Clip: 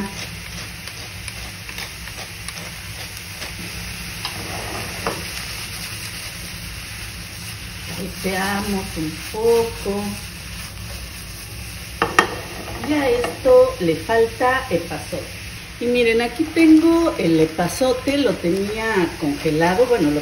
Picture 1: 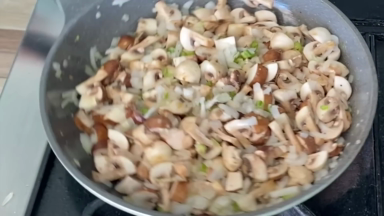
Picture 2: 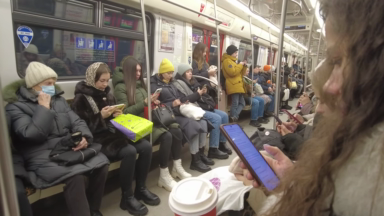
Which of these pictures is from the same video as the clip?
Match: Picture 1